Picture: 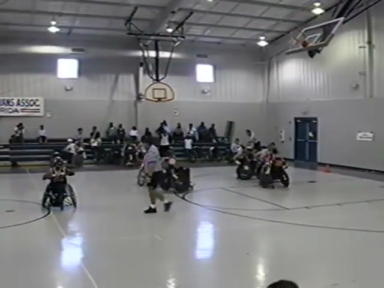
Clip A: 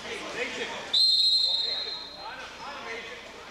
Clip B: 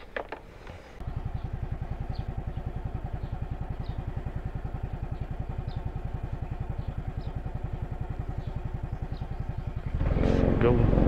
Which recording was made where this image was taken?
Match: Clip A